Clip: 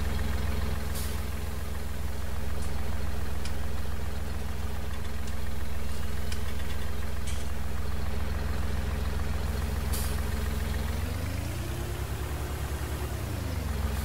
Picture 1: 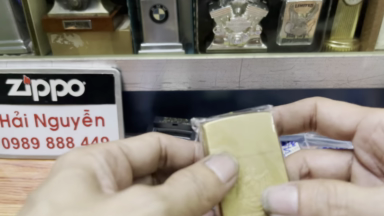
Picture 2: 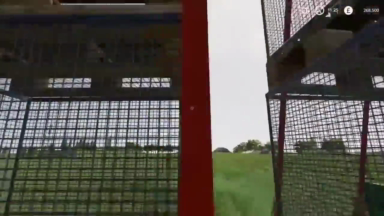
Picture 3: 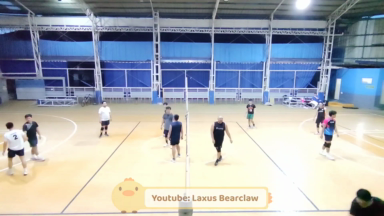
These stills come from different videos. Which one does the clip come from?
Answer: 2